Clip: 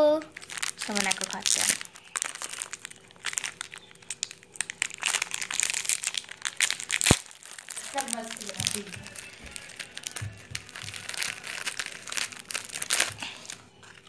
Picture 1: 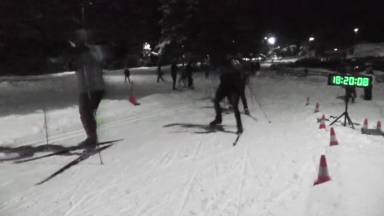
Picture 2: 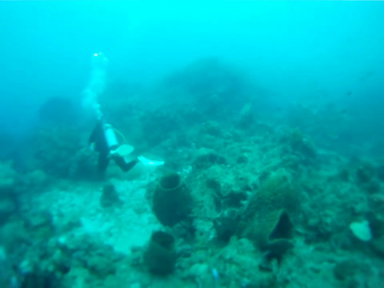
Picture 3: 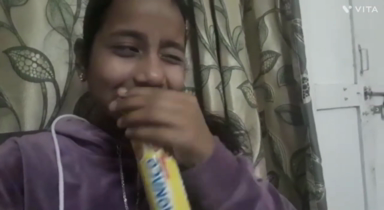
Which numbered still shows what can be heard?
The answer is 3